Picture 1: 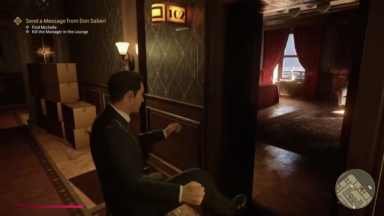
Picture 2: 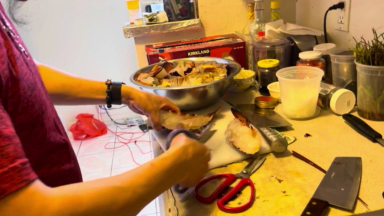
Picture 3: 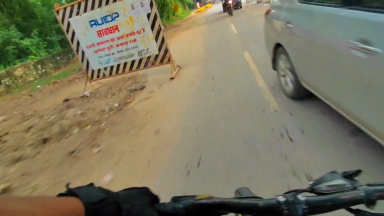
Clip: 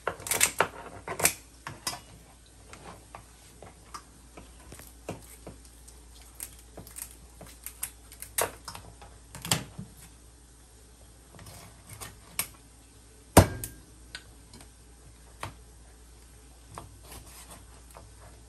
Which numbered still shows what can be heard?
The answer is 2